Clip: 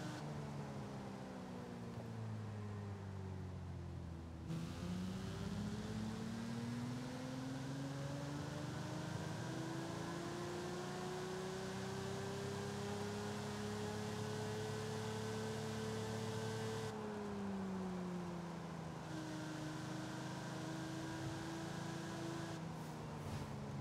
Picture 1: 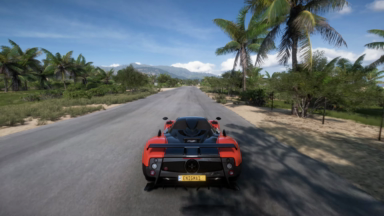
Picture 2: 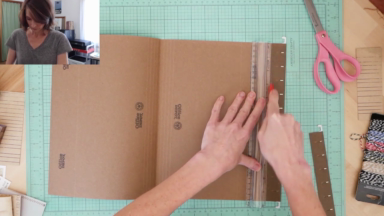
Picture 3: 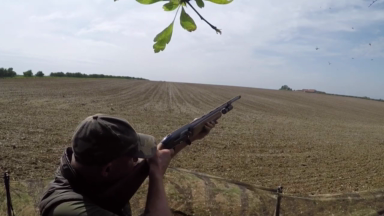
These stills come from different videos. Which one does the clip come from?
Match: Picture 1